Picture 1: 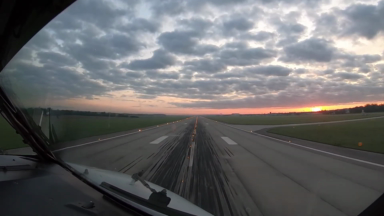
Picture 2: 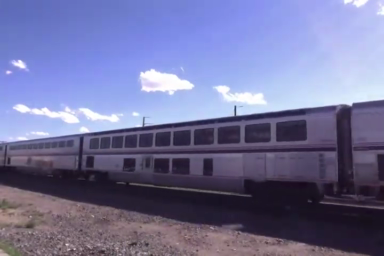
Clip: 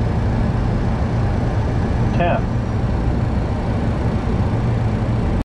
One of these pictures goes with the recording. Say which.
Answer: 1